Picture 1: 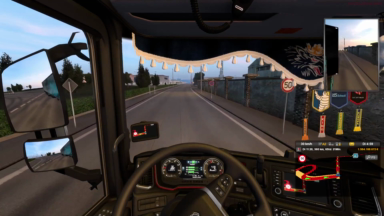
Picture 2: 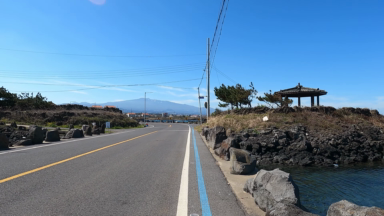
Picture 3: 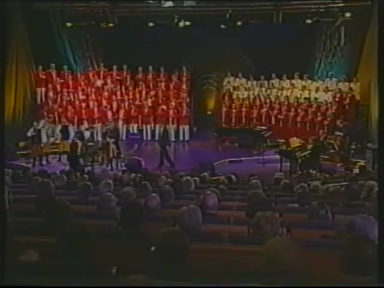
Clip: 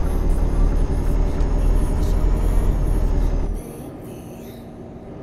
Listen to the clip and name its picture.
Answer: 1